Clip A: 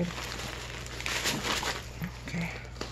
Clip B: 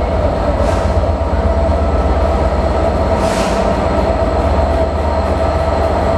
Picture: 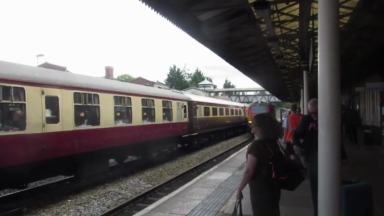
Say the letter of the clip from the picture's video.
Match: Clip B